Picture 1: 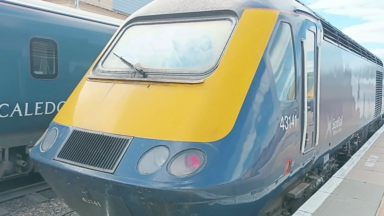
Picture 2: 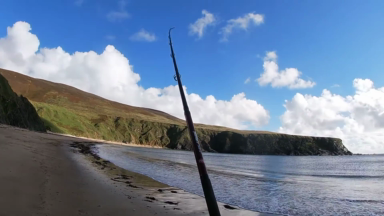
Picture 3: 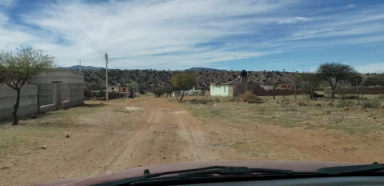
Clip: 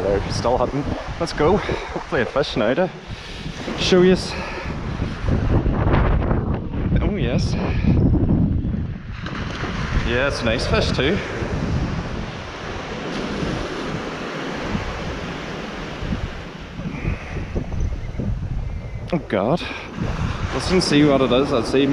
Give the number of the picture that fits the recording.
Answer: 2